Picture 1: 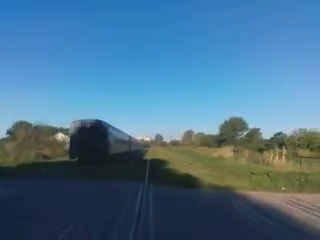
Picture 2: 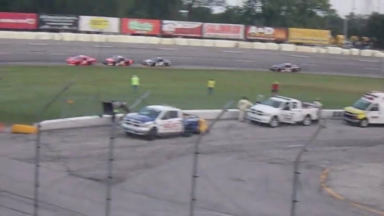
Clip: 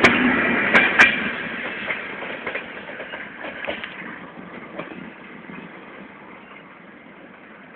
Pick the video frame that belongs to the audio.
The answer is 1